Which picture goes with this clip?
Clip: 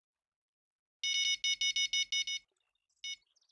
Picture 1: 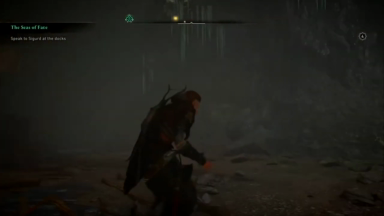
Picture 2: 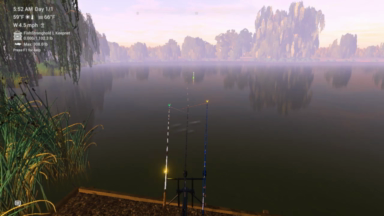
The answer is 2